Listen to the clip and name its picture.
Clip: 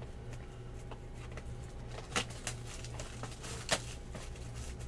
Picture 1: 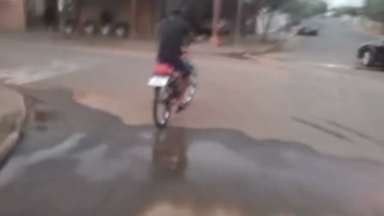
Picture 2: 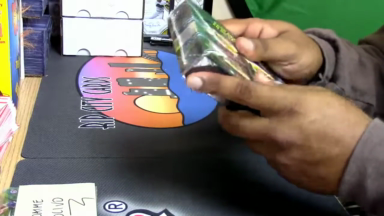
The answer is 2